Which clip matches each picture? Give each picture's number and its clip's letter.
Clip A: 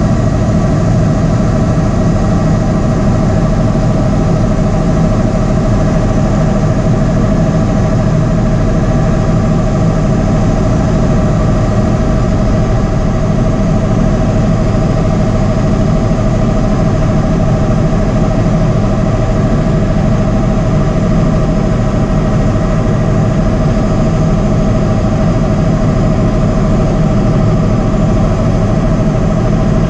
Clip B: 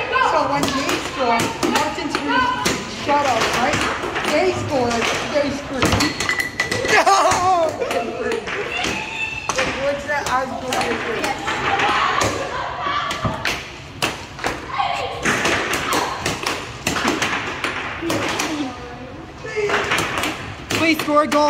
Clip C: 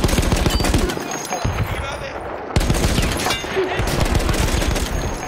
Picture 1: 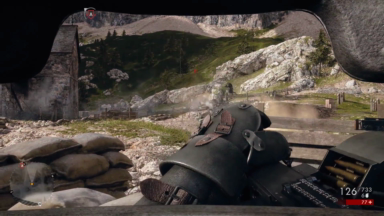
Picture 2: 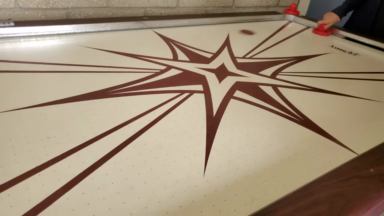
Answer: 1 C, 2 B